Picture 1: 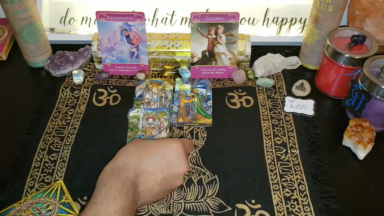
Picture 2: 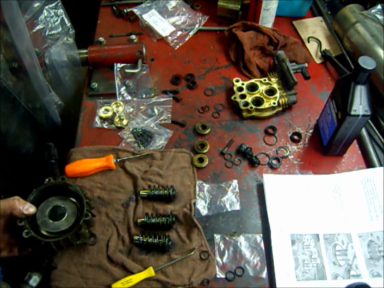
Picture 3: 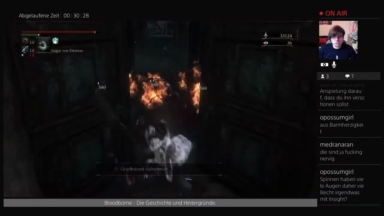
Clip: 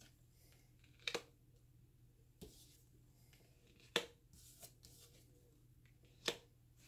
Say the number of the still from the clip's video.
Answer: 1